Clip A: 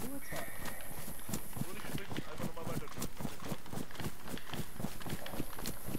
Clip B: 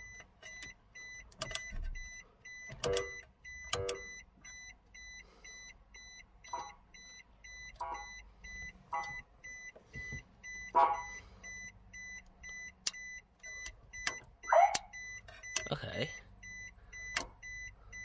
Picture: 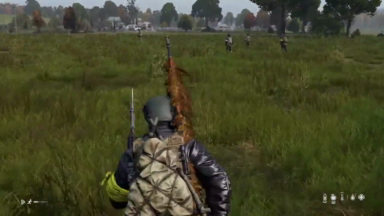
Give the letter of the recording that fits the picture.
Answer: A